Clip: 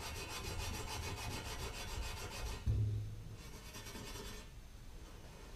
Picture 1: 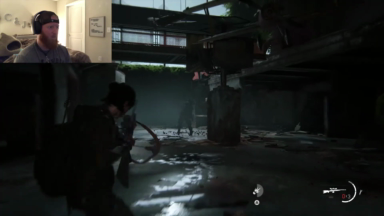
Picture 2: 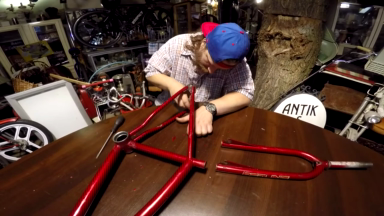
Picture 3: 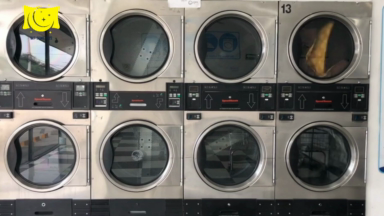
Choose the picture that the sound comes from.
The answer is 2